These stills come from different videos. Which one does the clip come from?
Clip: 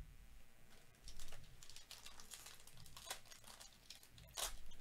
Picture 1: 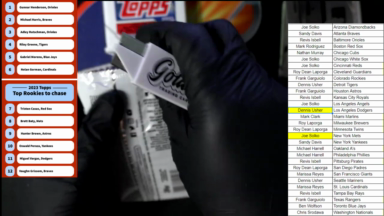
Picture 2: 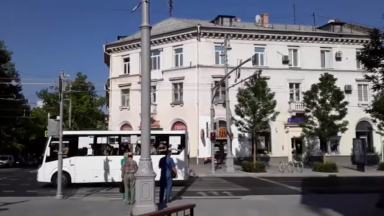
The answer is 1